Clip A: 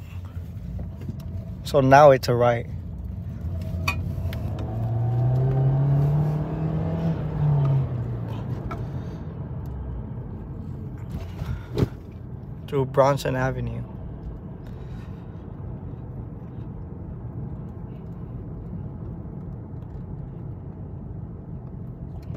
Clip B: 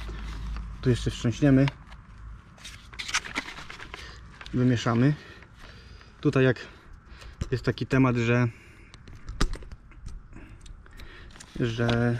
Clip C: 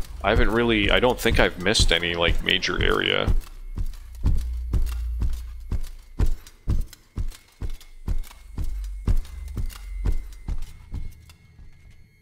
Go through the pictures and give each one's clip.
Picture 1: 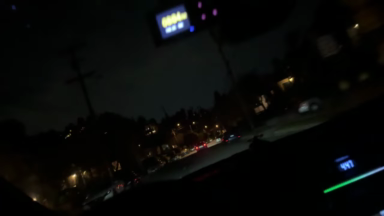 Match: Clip A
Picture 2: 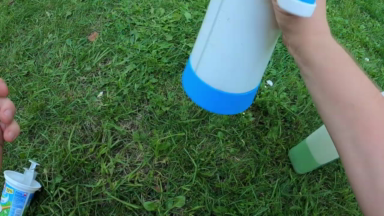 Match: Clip B